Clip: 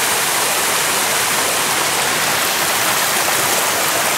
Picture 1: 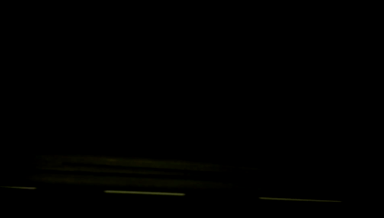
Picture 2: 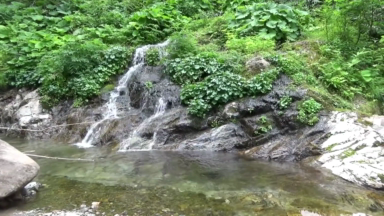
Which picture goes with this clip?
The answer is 2